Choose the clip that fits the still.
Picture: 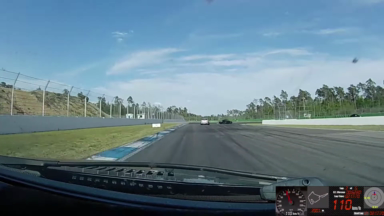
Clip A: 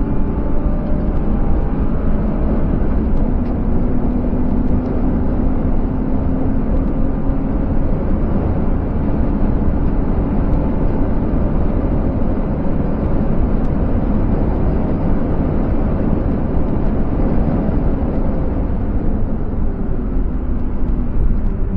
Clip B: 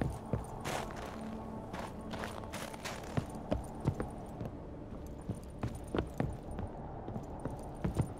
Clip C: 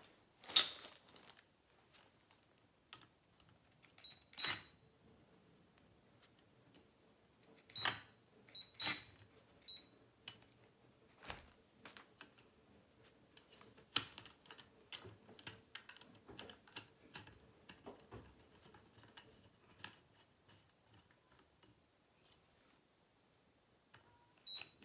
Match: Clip A